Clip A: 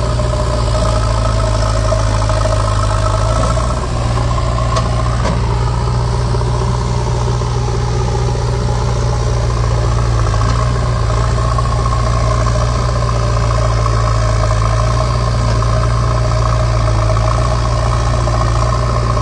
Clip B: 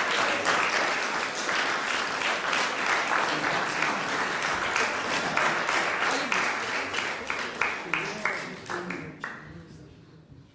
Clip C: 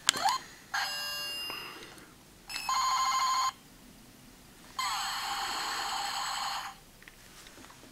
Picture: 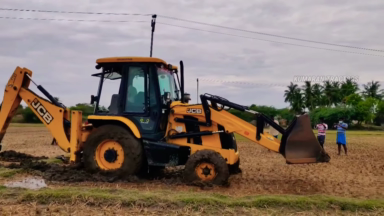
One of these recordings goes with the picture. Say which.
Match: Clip A